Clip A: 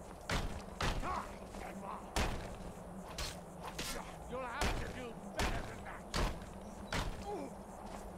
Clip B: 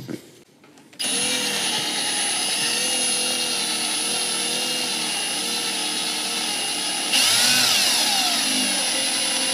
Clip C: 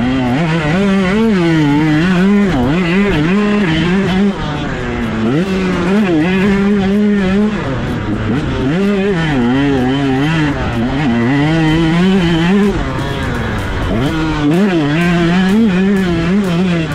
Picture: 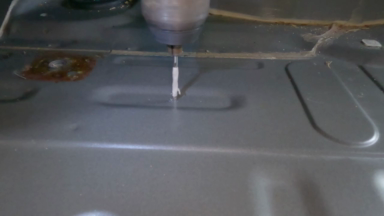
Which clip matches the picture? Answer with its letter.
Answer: B